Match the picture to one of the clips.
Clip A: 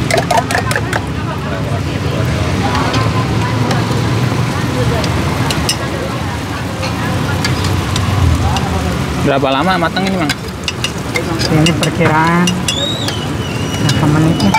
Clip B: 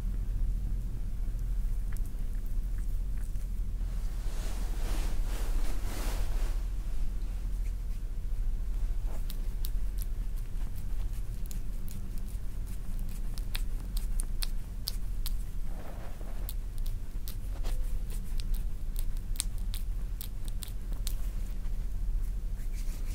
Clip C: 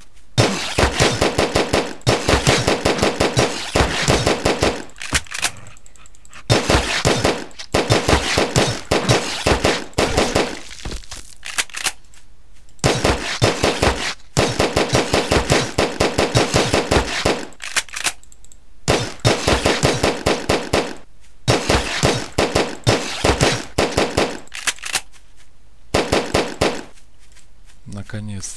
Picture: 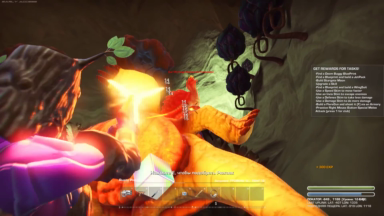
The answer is C